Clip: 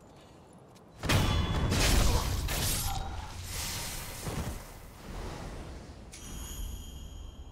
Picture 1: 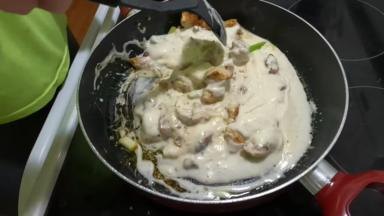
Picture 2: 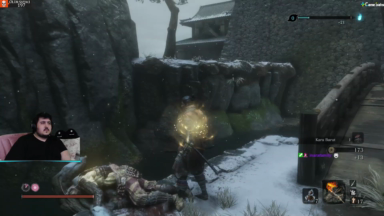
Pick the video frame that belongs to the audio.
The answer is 2